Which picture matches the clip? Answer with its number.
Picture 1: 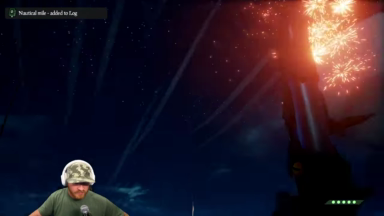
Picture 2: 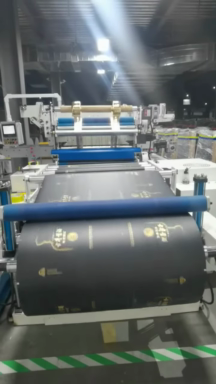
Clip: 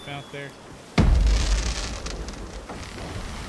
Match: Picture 1